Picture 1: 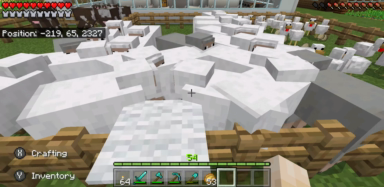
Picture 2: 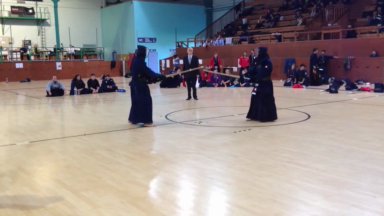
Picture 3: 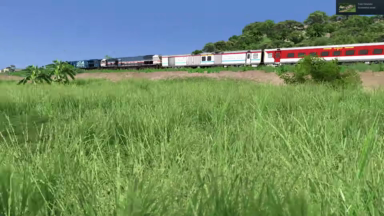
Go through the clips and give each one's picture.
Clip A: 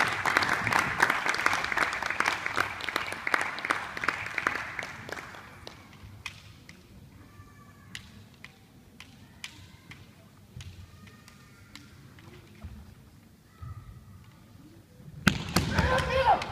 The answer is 2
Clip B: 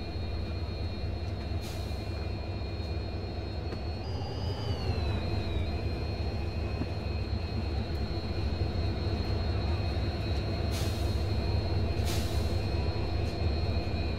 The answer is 3